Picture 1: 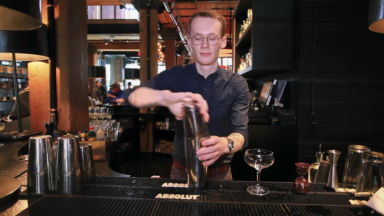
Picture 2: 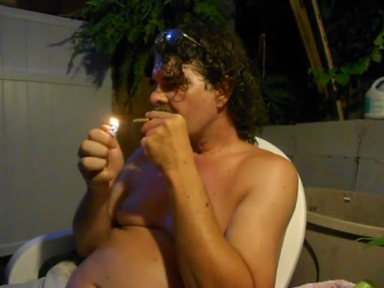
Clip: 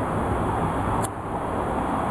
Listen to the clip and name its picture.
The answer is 2